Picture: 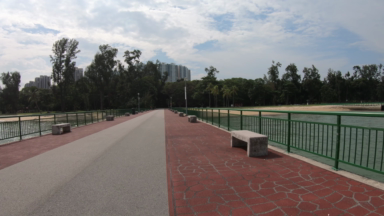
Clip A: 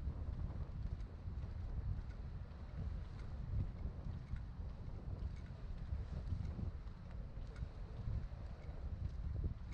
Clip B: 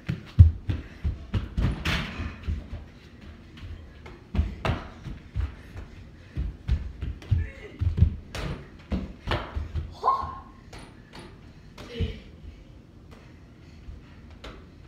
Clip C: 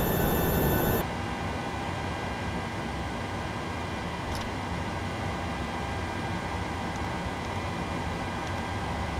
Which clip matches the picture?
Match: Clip A